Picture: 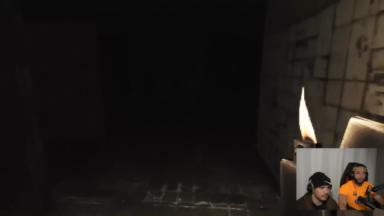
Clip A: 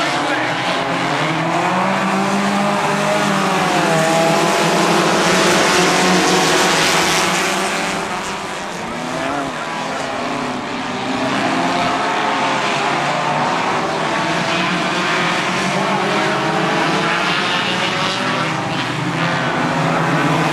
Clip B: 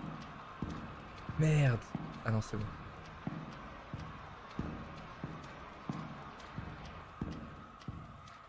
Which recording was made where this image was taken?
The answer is B